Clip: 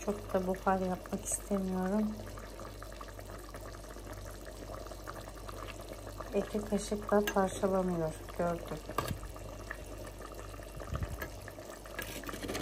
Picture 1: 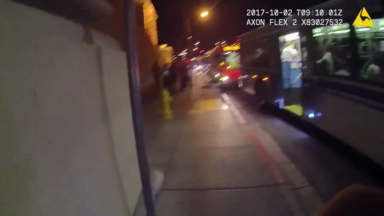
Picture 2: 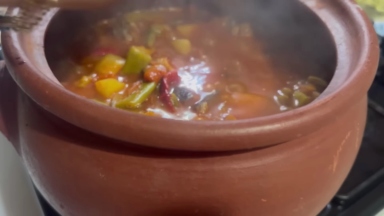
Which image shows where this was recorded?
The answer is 2